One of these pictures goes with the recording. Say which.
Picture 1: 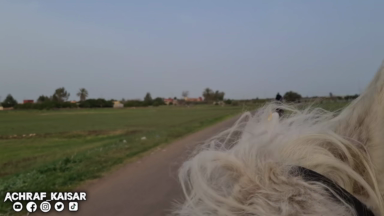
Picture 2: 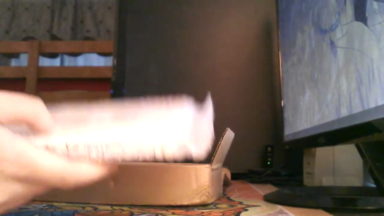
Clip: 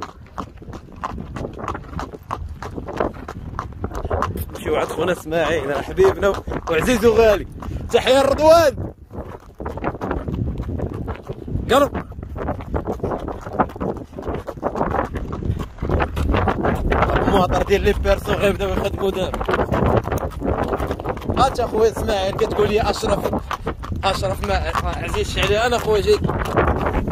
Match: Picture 1